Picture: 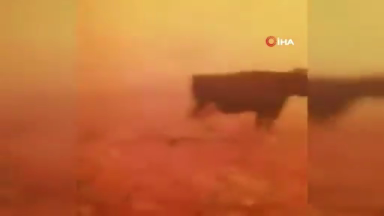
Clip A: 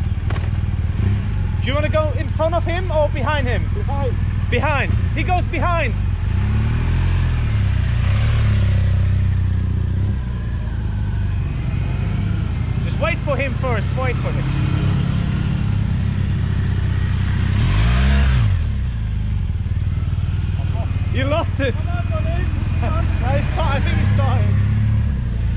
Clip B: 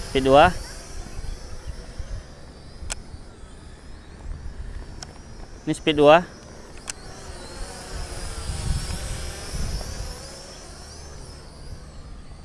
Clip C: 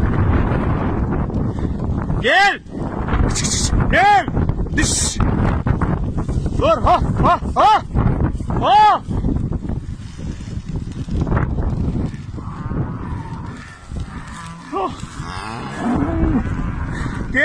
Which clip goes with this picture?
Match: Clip C